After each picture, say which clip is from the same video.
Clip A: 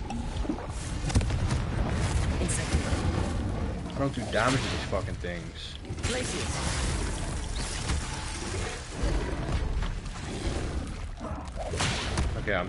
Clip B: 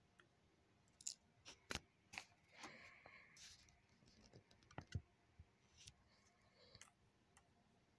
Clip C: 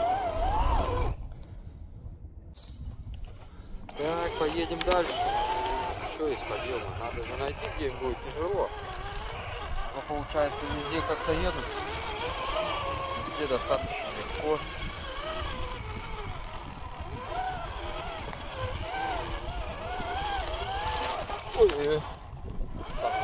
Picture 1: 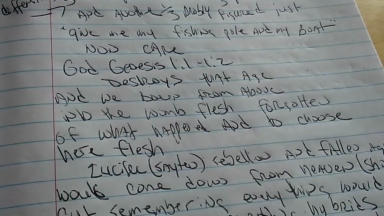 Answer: B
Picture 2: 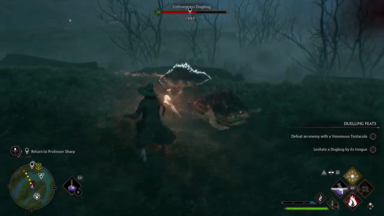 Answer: A